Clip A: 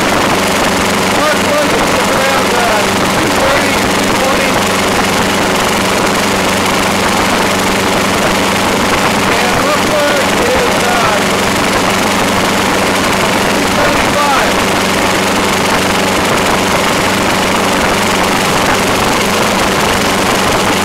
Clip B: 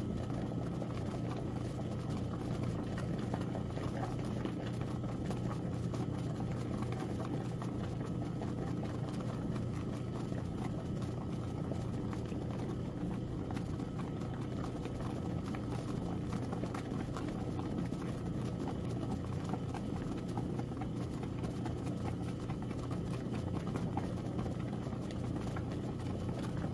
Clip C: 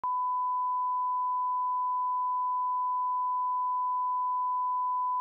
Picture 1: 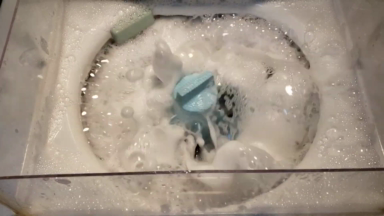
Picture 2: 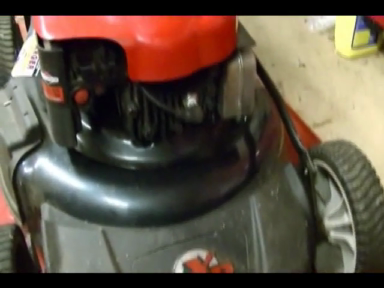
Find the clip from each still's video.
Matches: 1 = B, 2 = A